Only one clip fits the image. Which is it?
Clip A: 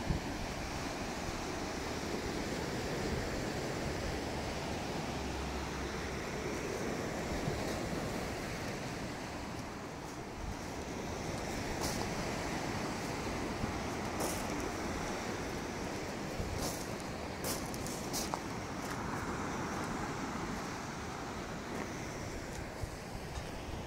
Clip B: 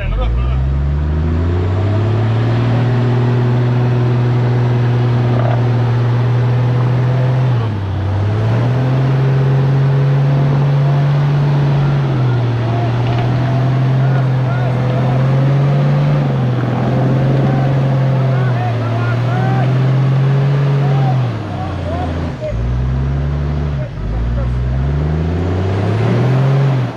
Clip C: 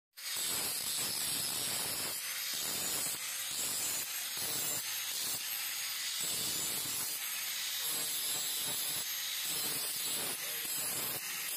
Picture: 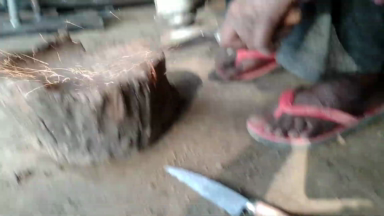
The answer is C